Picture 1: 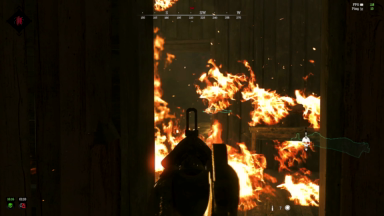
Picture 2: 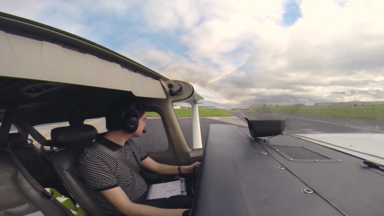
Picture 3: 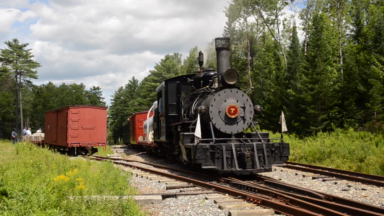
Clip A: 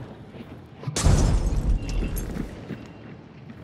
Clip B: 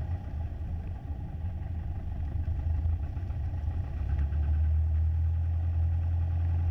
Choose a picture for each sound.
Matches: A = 1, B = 2